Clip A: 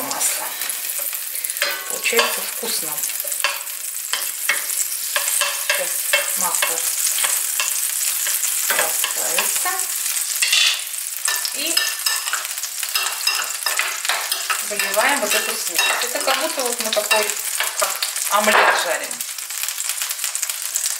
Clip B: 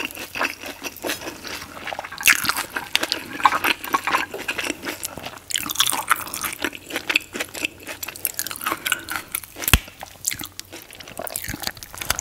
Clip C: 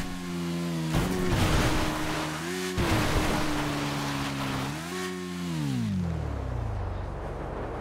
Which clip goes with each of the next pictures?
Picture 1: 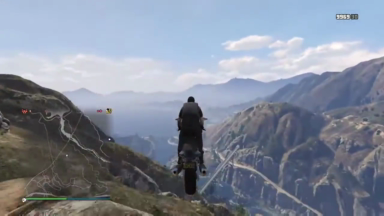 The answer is C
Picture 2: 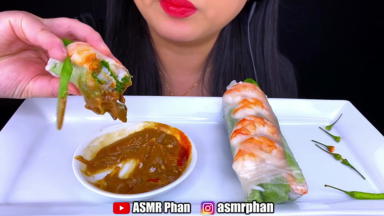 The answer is B